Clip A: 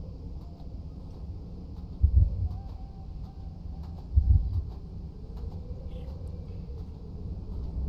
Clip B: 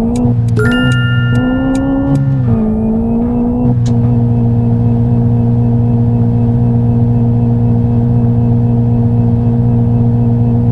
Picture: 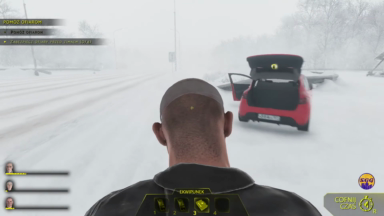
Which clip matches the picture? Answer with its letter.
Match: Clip A